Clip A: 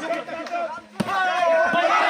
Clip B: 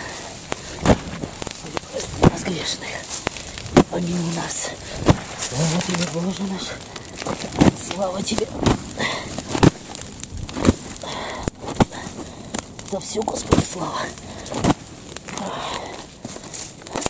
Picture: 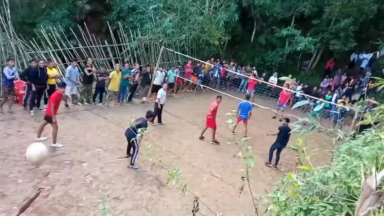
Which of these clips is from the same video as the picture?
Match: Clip A